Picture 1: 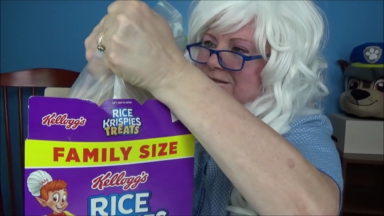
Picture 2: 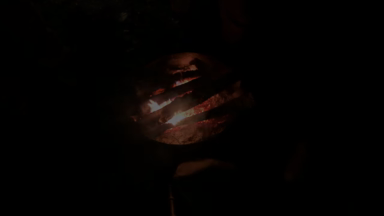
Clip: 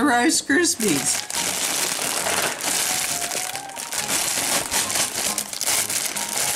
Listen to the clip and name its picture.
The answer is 1